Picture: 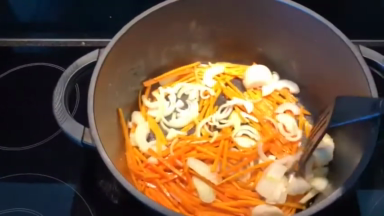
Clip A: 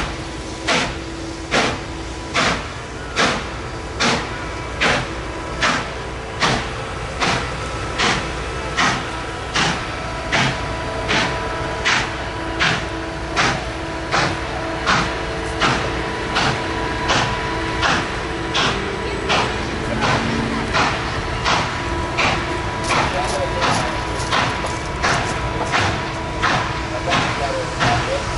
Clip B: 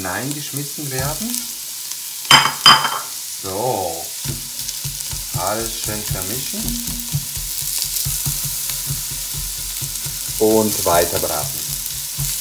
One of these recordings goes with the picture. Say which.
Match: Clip B